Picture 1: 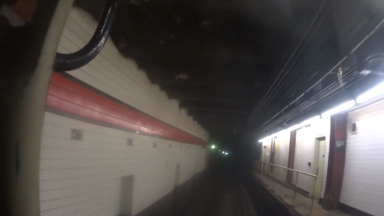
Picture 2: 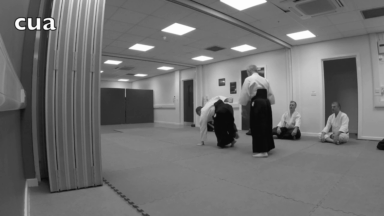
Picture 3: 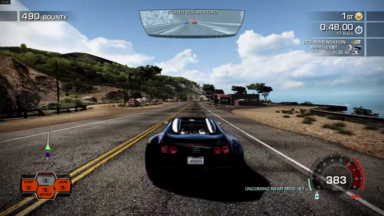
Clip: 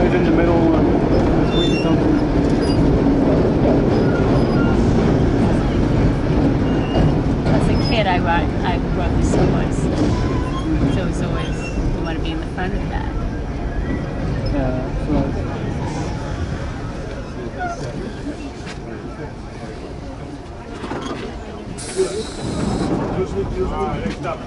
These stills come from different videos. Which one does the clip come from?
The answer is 1